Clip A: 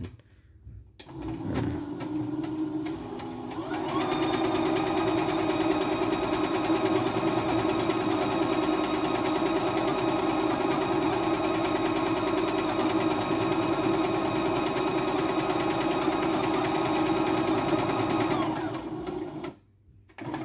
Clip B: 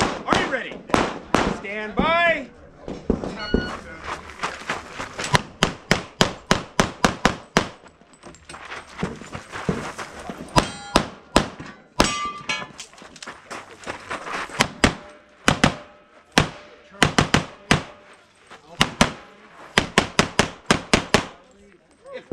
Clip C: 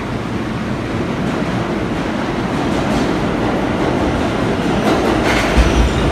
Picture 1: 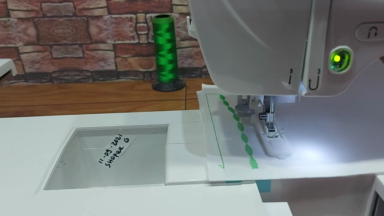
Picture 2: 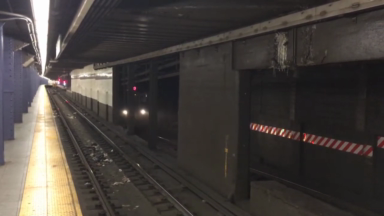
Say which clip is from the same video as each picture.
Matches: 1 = A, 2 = C